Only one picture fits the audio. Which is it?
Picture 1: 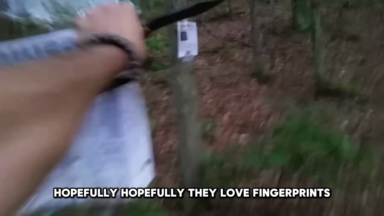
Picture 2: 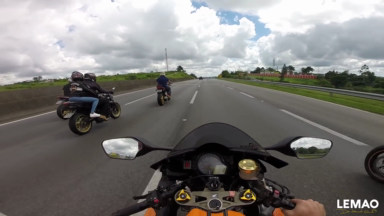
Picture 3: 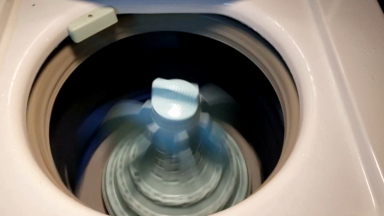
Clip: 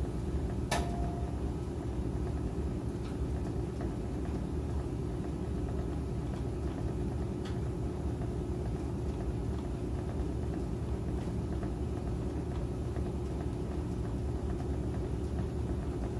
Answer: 3